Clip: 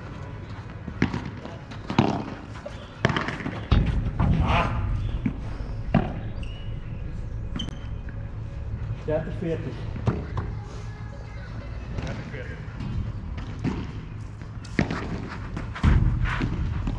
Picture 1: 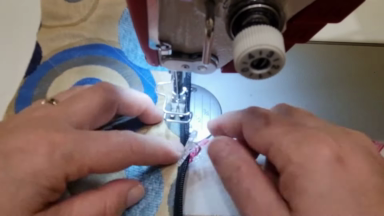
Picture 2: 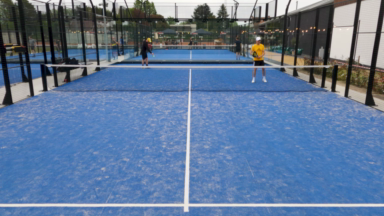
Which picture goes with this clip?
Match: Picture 2